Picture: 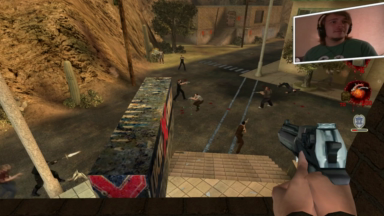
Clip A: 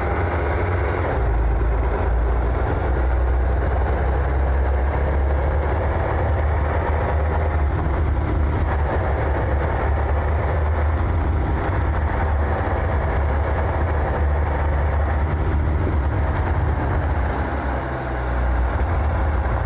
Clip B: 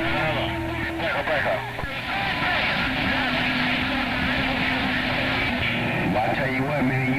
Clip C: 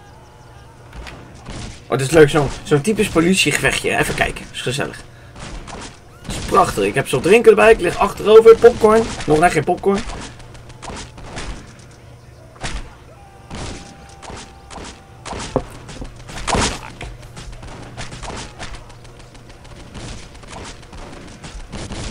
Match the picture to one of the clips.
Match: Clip C